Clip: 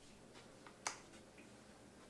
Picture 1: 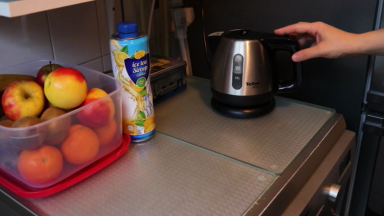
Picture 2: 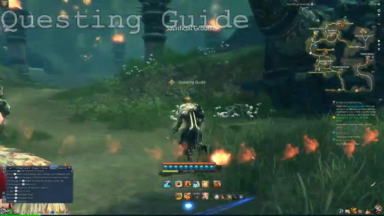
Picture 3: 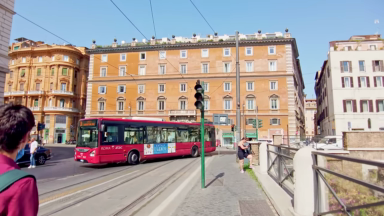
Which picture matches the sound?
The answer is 1